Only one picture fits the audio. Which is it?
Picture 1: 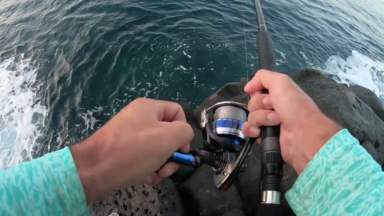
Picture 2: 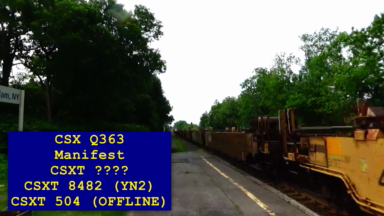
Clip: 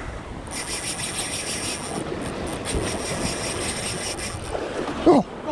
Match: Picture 1